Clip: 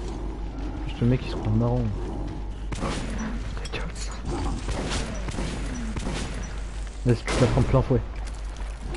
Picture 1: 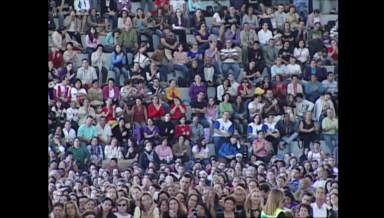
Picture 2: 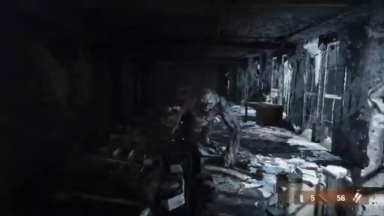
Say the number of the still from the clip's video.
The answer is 2